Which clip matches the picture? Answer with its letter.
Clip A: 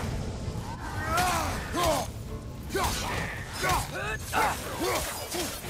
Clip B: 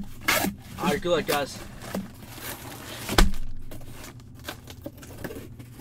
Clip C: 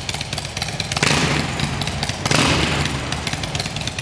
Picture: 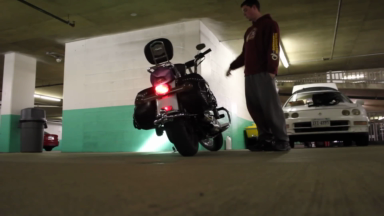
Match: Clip C